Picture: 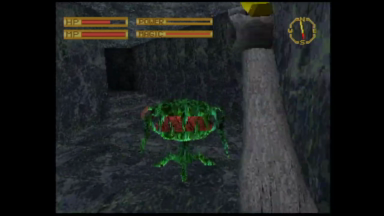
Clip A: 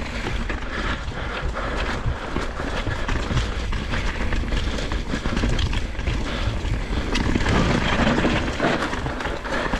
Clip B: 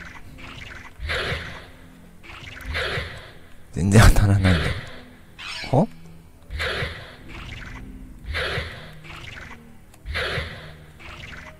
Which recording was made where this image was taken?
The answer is B